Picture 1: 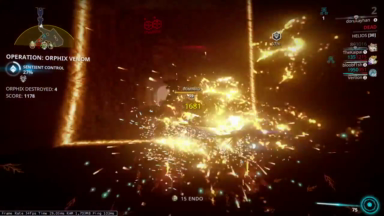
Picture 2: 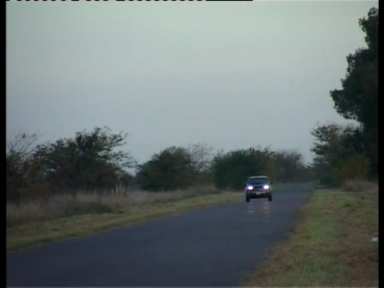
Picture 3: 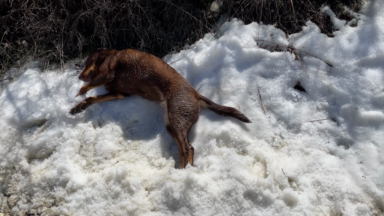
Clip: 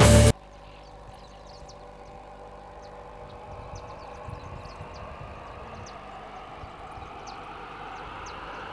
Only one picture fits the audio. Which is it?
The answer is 2